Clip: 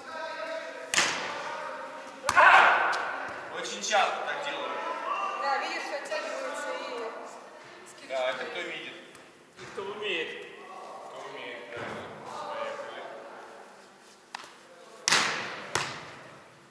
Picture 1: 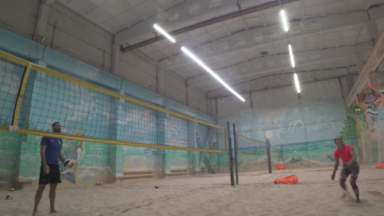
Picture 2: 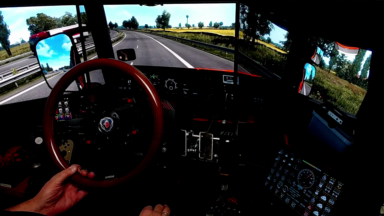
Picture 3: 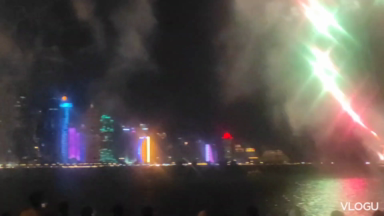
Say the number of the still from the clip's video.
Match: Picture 1